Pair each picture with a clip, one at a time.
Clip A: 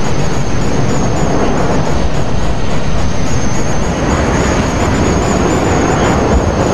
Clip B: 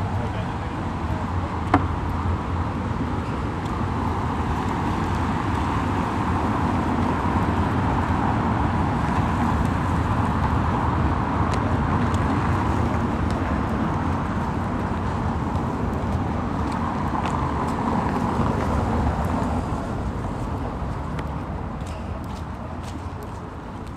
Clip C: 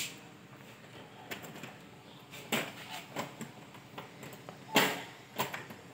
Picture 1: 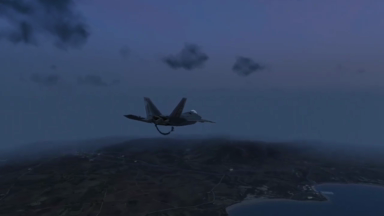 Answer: A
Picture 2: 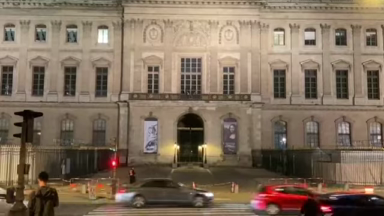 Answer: B